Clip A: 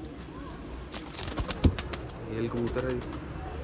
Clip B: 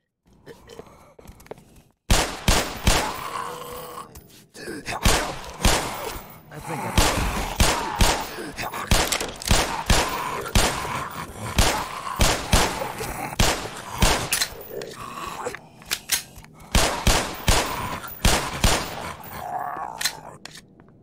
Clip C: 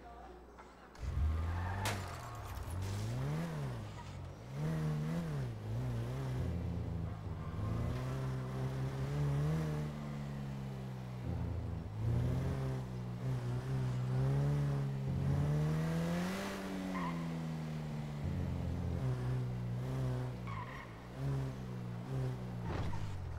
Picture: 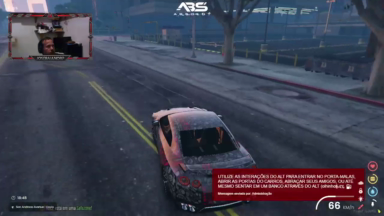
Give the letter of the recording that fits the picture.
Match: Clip C